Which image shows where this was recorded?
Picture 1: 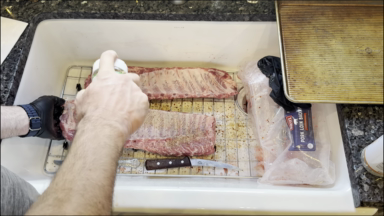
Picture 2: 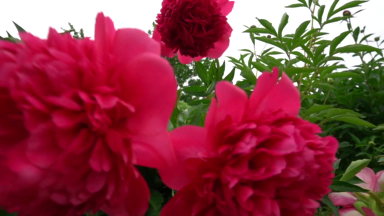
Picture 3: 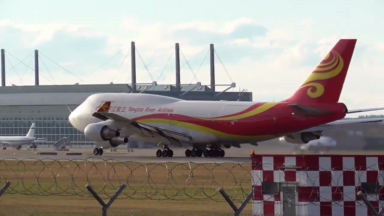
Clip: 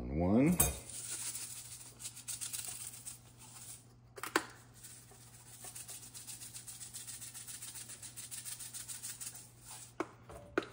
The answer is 1